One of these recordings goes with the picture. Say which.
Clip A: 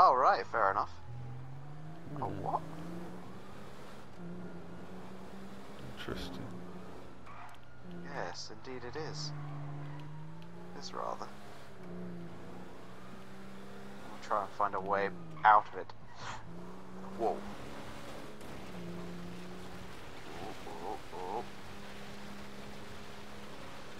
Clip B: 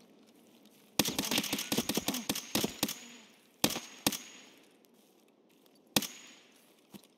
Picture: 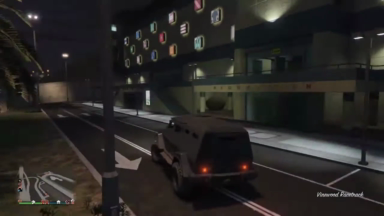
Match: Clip A